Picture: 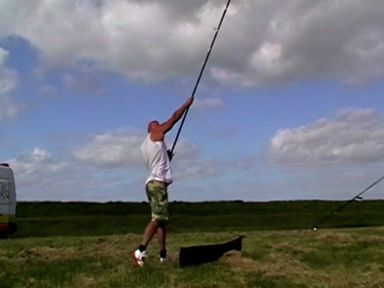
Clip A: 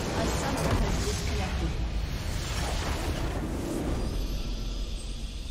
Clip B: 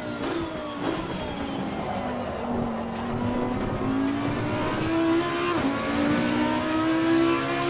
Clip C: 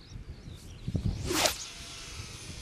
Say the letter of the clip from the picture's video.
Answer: C